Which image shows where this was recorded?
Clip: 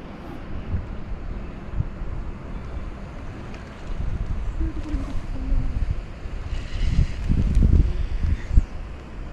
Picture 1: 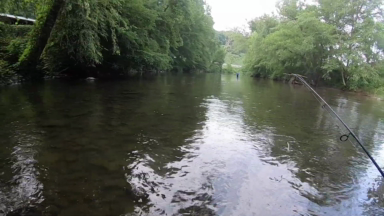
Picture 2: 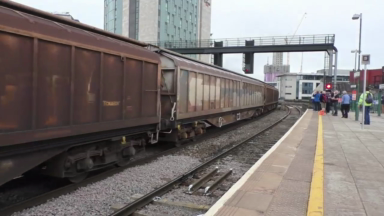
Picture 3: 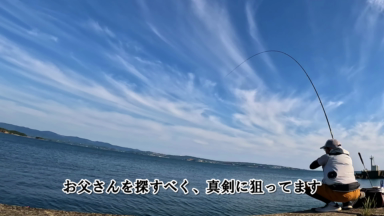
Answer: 3